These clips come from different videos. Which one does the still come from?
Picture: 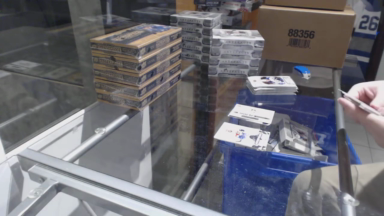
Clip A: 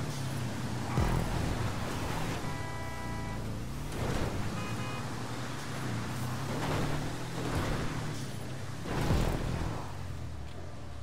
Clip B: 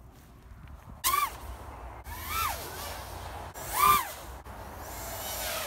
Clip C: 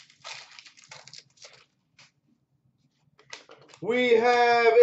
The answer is C